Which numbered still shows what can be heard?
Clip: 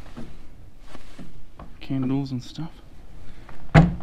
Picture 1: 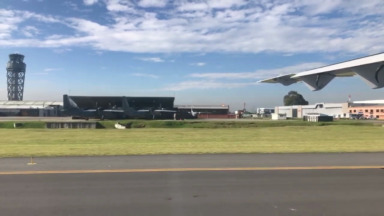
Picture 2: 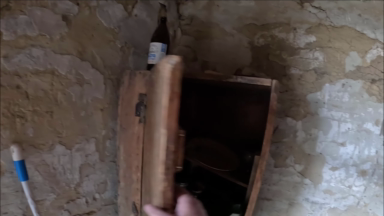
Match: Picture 2